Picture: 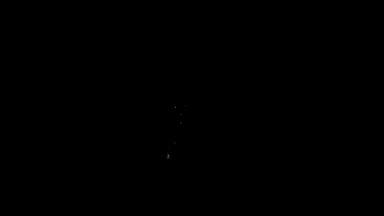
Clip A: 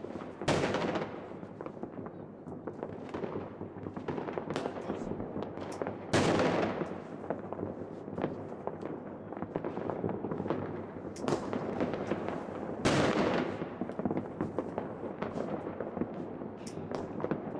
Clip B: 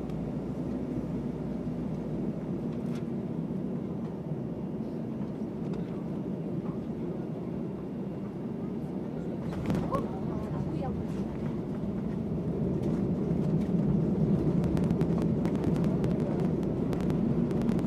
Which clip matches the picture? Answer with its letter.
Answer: A